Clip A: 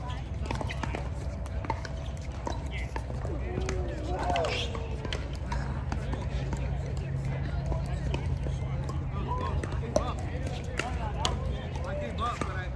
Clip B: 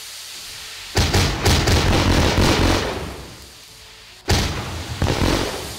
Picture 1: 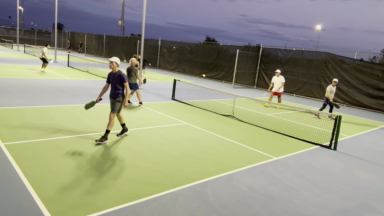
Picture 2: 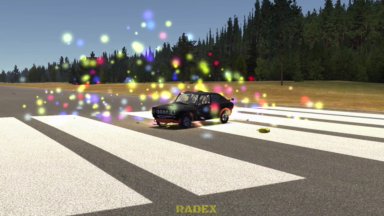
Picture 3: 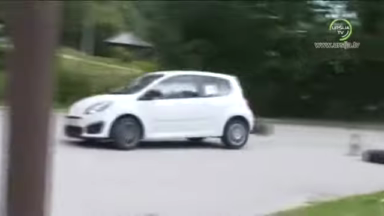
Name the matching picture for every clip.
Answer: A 1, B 2